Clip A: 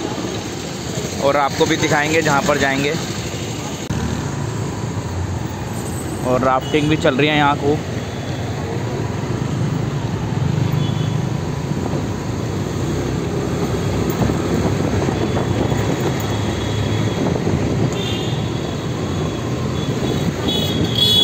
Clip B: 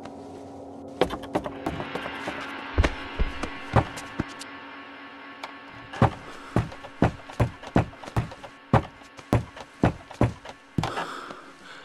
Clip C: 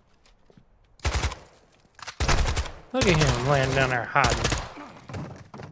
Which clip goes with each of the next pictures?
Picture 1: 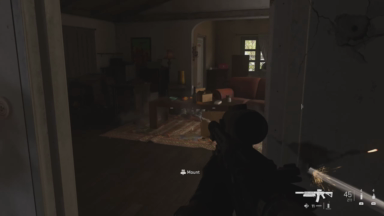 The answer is C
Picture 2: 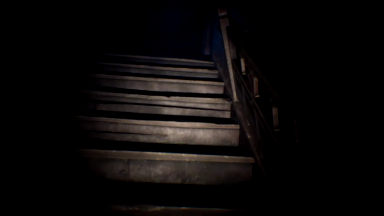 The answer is B